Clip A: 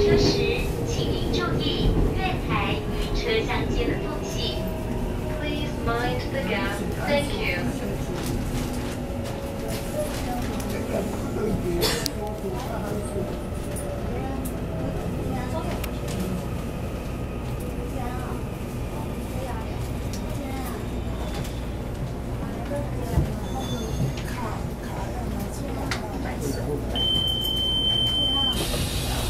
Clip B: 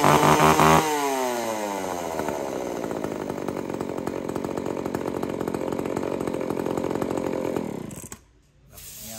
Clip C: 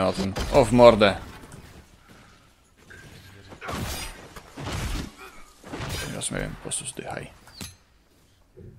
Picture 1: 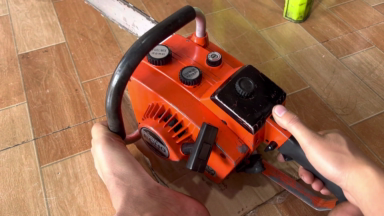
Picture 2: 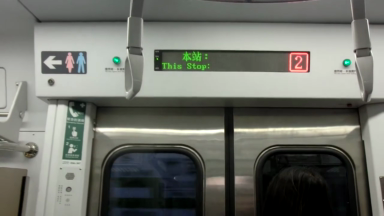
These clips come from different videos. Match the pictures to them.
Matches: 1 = B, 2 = A